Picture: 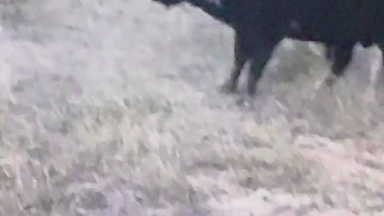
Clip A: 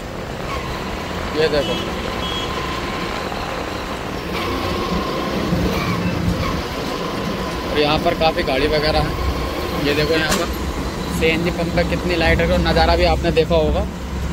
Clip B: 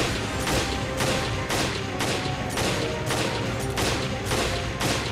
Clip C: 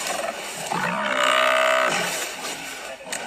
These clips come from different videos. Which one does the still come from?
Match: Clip C